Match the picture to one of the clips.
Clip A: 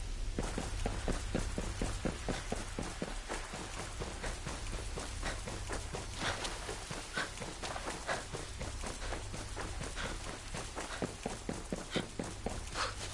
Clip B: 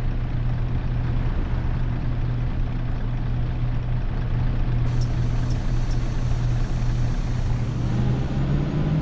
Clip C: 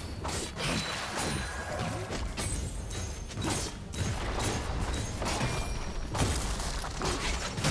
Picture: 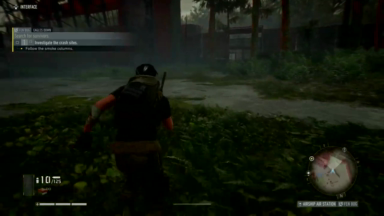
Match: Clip A